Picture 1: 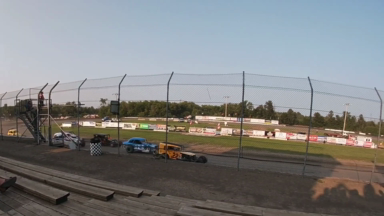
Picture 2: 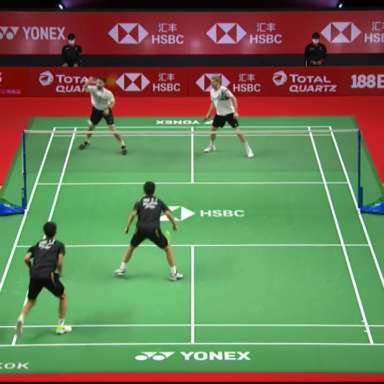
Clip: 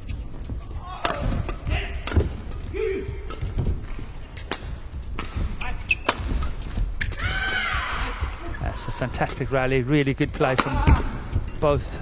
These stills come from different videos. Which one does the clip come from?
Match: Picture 2